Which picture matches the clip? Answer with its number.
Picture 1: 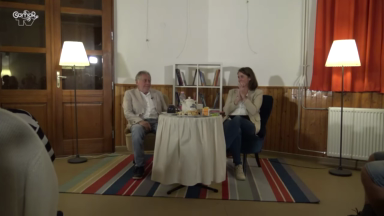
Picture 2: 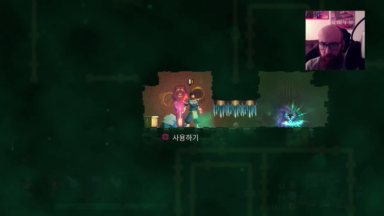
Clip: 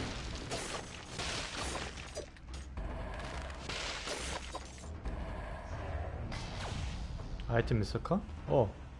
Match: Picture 2